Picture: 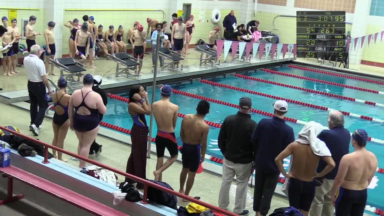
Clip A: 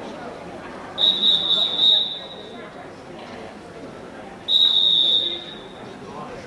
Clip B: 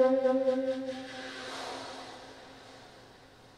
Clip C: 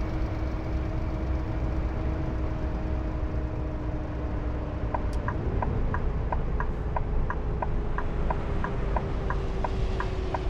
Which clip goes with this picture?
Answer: A